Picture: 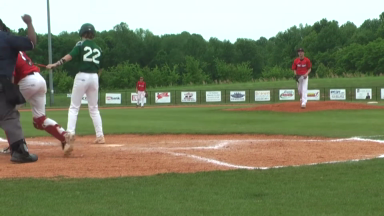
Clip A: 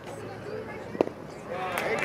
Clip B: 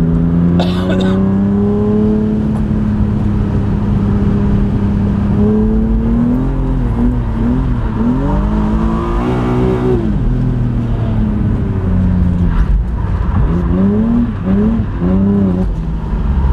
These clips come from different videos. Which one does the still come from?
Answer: A